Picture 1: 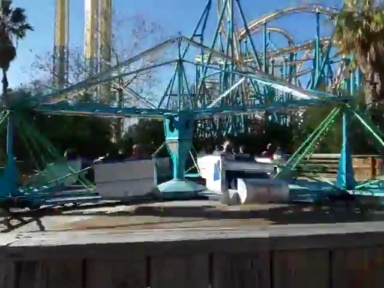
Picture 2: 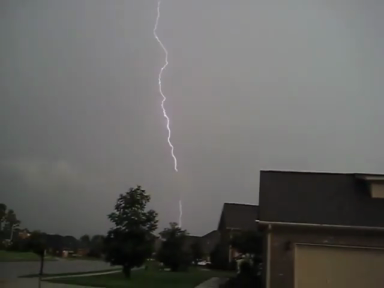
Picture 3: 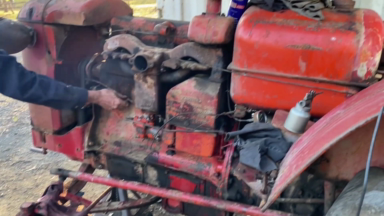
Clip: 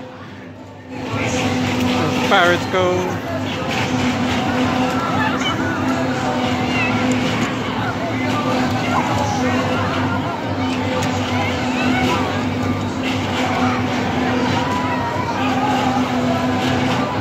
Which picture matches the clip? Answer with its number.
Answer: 1